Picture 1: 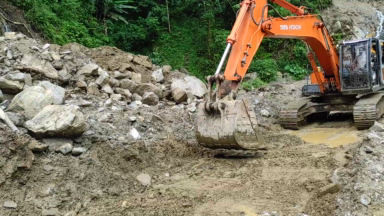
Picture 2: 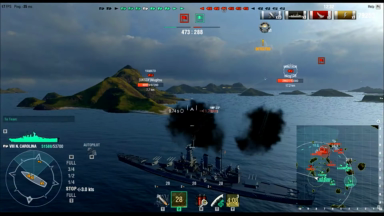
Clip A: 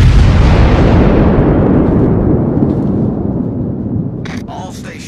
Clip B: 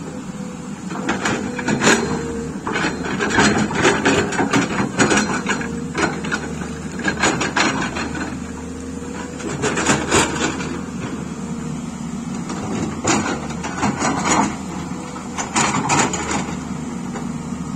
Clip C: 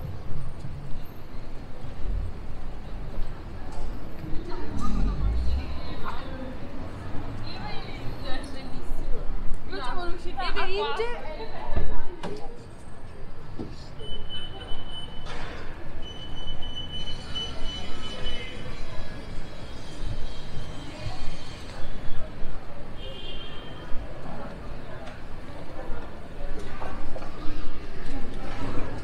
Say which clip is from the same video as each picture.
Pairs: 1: B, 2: A